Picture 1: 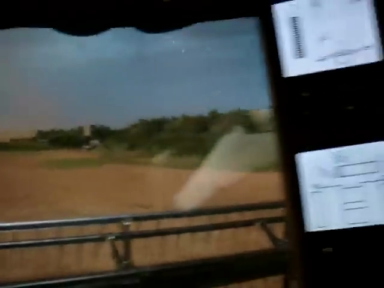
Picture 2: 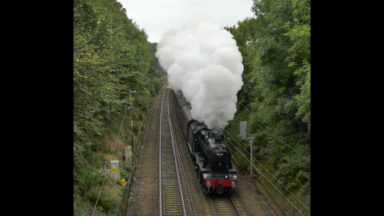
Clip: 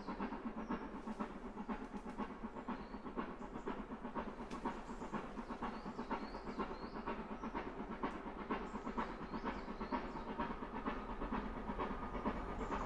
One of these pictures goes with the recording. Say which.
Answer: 2